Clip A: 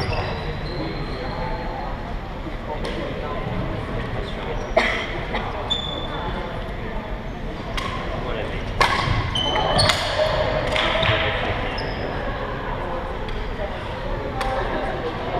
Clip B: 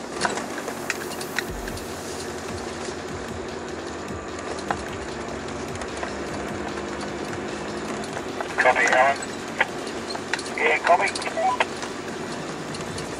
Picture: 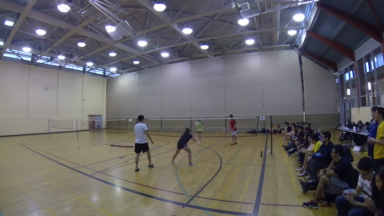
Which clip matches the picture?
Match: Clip A